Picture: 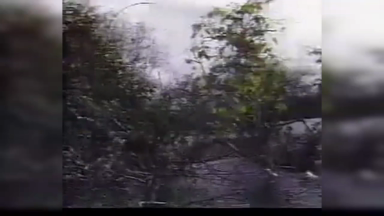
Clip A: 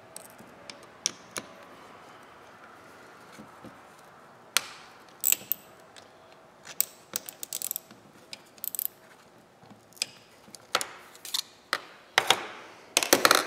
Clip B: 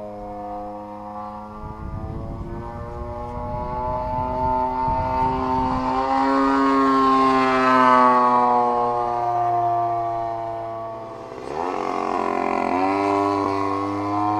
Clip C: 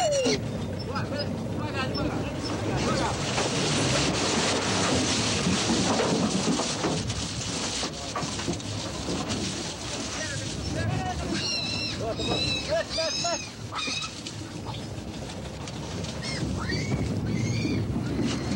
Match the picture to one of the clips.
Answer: C